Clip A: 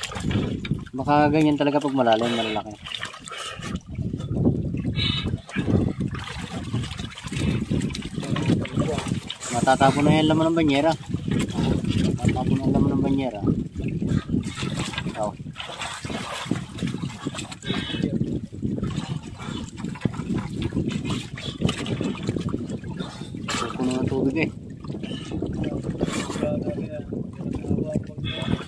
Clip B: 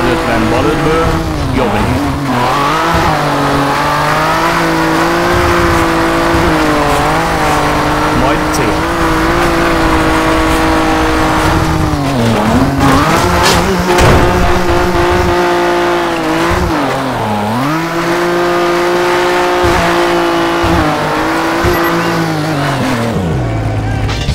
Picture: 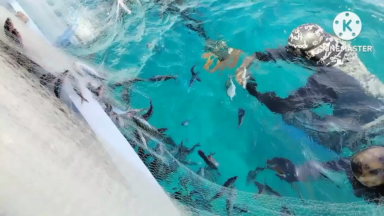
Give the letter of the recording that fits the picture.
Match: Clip A